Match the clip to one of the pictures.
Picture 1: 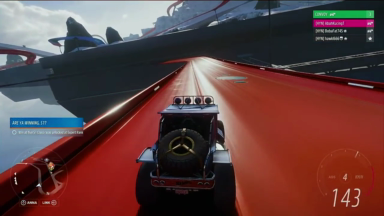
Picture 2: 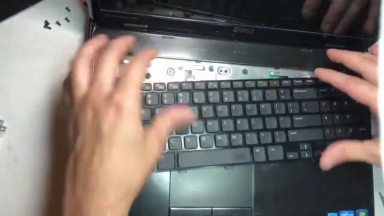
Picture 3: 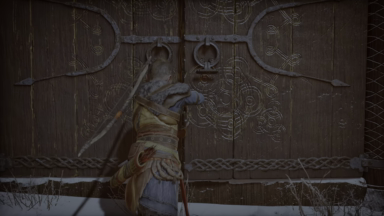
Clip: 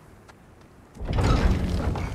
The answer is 3